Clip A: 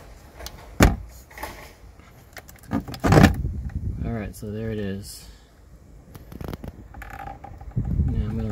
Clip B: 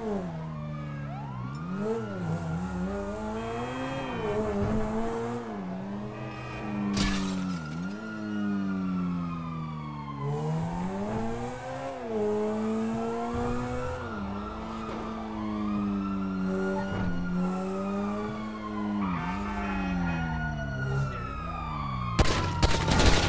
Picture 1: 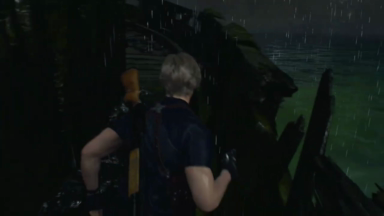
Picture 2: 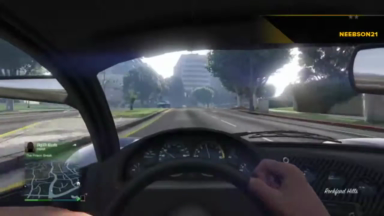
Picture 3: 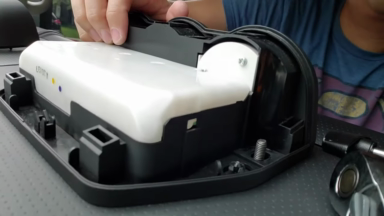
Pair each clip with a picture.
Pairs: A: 3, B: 2